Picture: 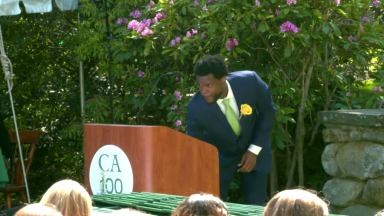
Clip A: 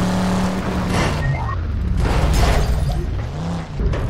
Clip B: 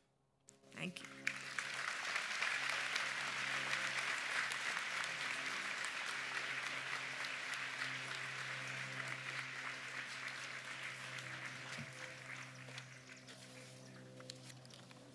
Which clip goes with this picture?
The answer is B